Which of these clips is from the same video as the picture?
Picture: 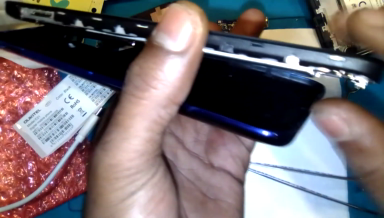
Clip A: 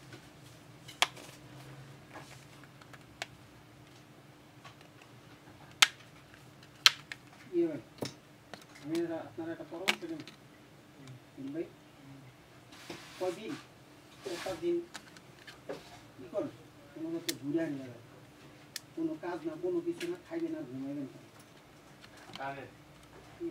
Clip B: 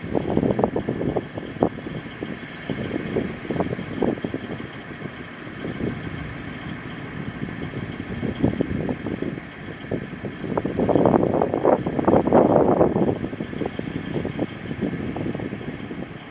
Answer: A